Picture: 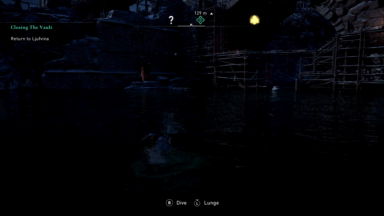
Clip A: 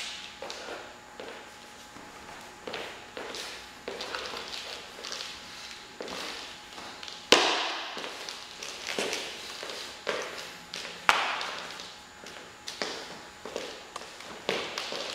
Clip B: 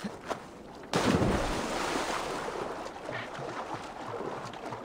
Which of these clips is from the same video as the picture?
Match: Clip B